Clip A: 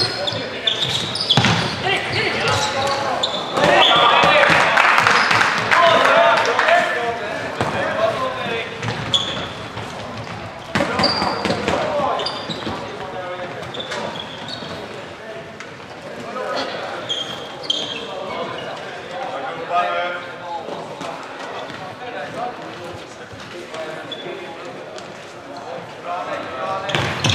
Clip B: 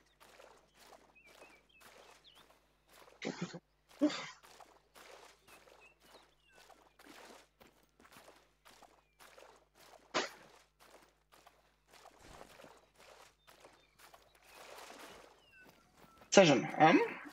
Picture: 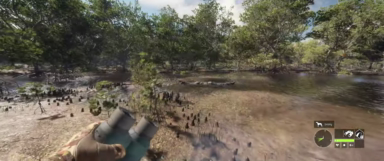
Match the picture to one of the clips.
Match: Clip B